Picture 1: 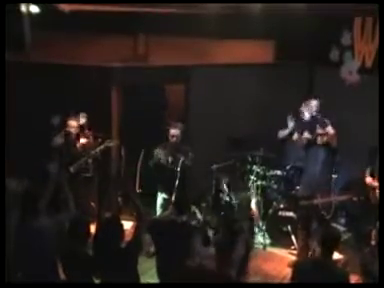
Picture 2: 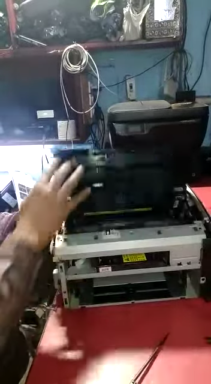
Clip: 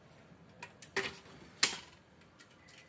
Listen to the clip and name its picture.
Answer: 2